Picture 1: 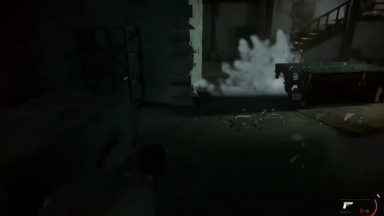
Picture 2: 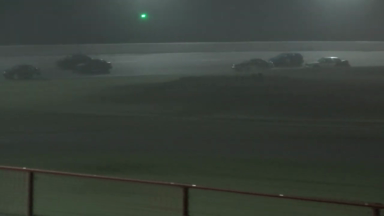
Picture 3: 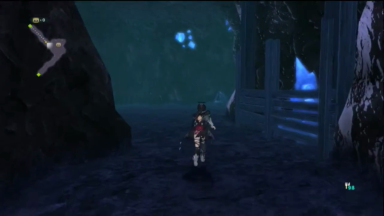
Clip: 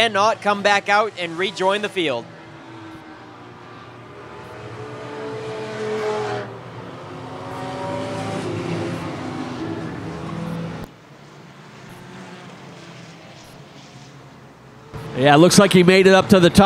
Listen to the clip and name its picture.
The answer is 2